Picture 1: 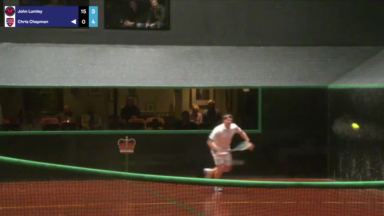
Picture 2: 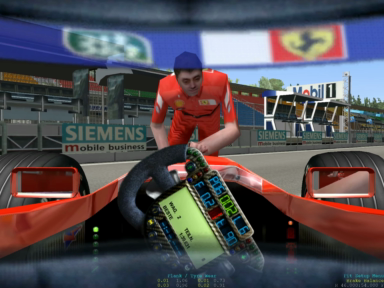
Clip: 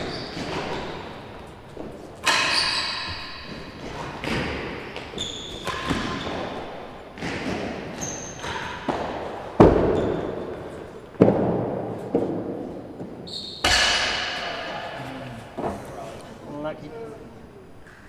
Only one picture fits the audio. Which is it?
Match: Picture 1